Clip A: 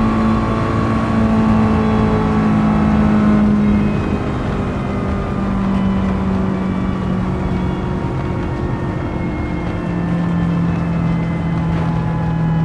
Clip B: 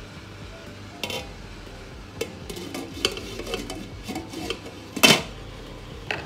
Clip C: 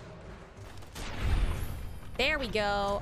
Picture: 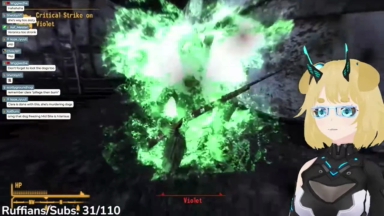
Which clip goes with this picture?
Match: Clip C